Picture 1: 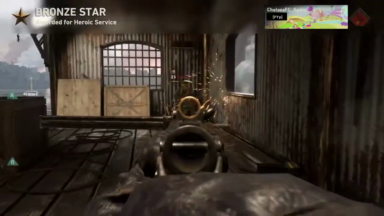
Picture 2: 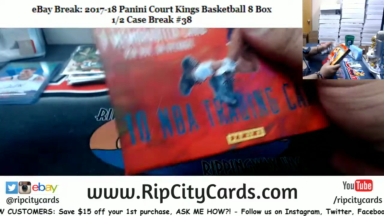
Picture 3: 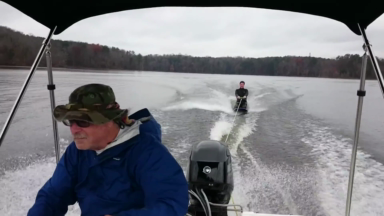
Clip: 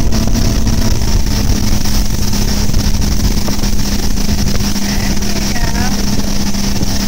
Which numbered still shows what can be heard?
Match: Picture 3